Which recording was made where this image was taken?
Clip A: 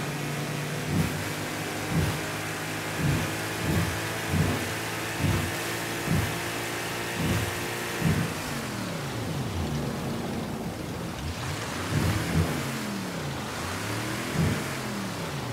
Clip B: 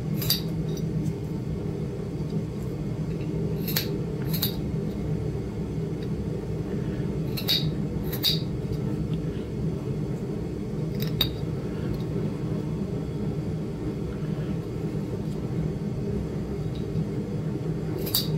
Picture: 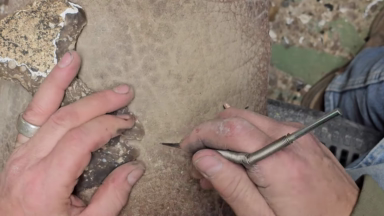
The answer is B